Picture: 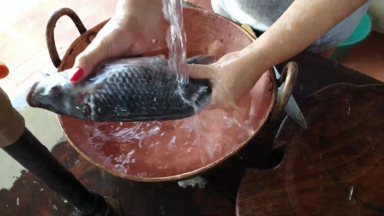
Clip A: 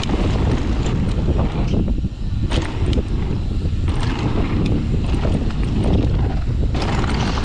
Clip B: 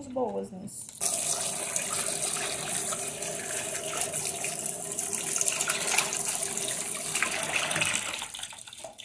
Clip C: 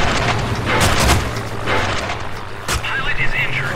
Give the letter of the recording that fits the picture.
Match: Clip B